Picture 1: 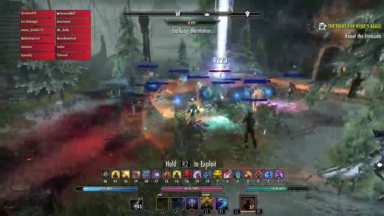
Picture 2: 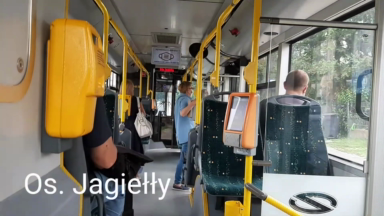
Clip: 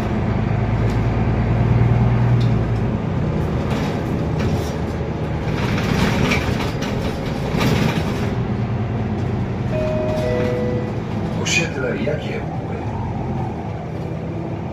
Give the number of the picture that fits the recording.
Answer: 2